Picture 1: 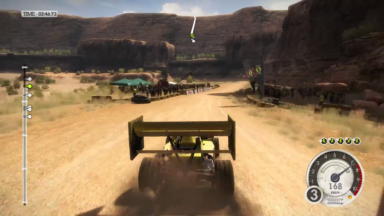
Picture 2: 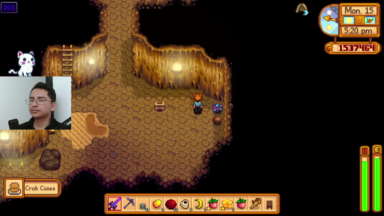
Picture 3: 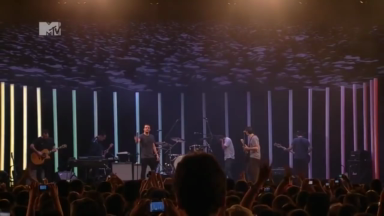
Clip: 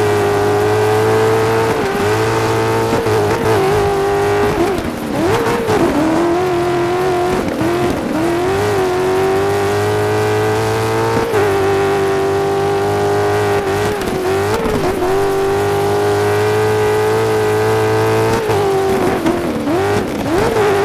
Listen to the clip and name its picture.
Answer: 1